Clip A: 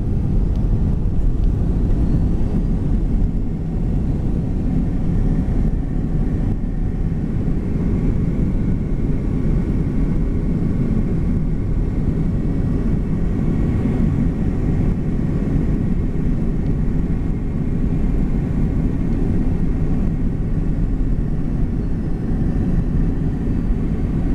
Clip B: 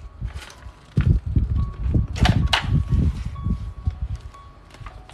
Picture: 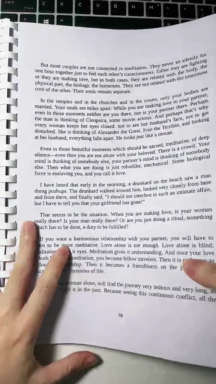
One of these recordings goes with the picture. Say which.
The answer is B